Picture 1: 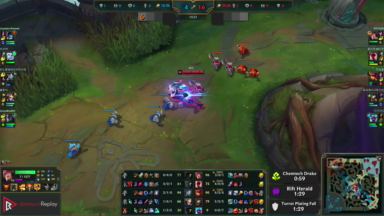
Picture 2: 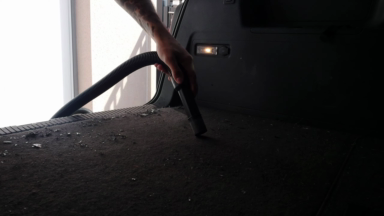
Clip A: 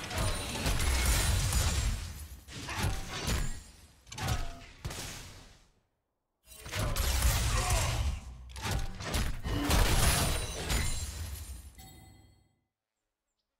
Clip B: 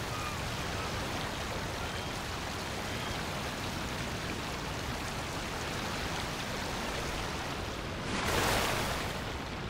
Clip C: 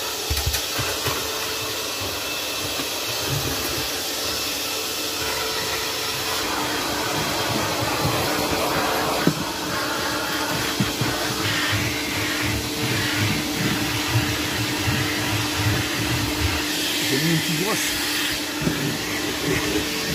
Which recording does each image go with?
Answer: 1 A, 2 C